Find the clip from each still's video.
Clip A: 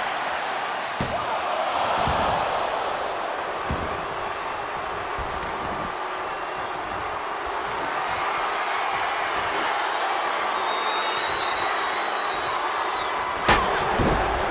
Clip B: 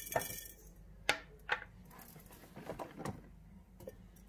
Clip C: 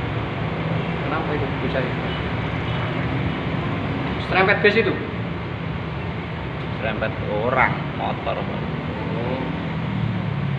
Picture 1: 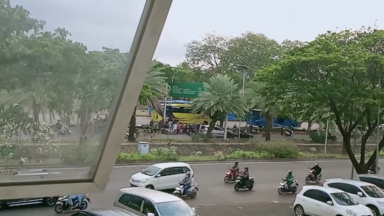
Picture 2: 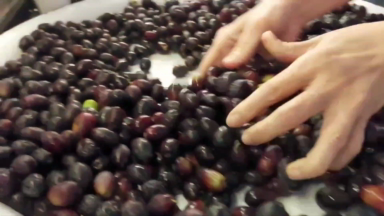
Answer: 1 C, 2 B